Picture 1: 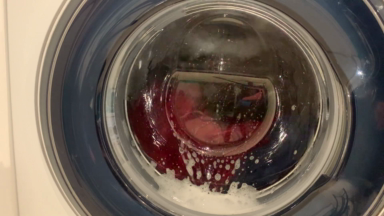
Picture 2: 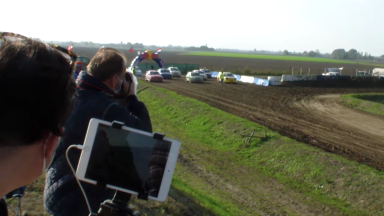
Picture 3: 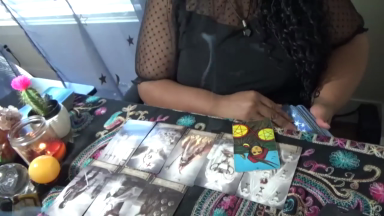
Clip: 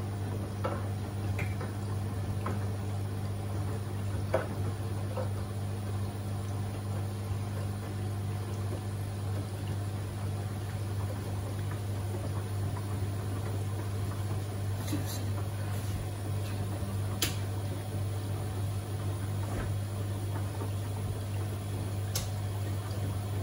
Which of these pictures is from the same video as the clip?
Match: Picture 1